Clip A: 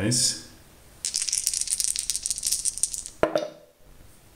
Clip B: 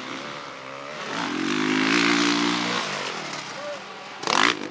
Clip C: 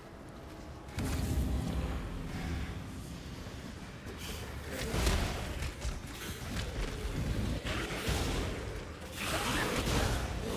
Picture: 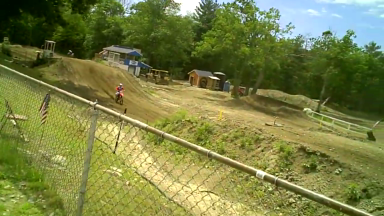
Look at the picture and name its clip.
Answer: B